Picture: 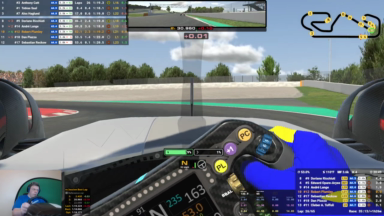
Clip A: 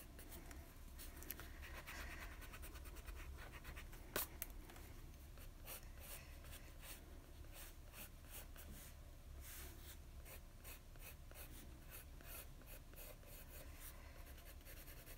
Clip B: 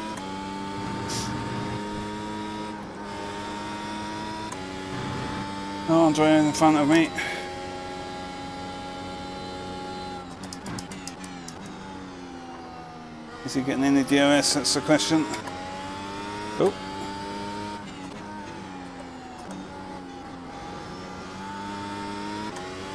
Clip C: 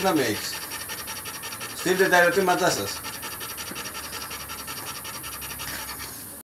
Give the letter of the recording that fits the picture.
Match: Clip B